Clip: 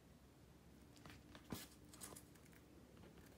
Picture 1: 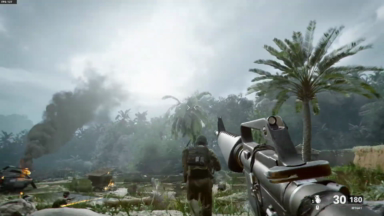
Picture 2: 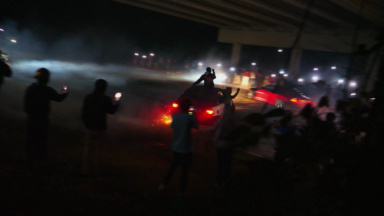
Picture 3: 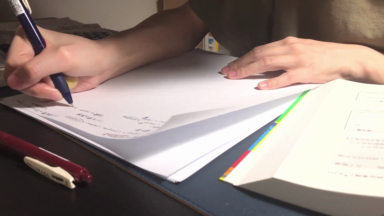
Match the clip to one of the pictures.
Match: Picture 3